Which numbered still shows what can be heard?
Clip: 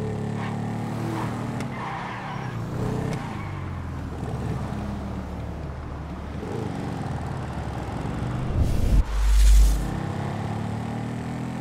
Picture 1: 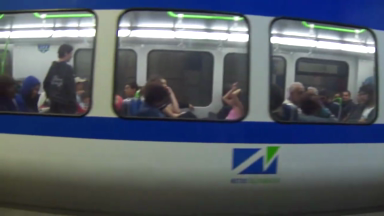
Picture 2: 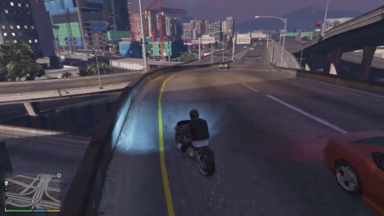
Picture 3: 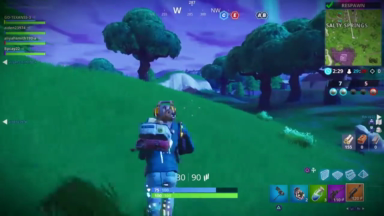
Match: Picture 2